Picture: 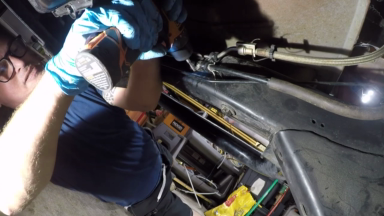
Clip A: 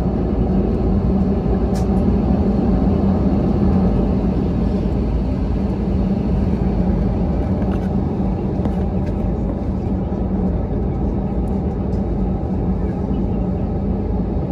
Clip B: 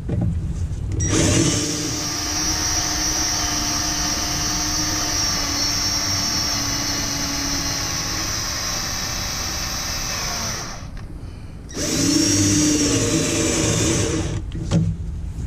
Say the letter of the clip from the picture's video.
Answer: B